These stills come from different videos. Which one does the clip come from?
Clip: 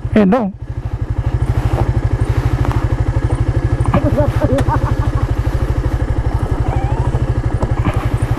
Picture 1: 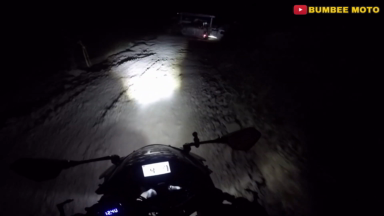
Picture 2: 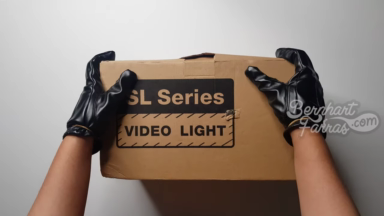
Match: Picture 1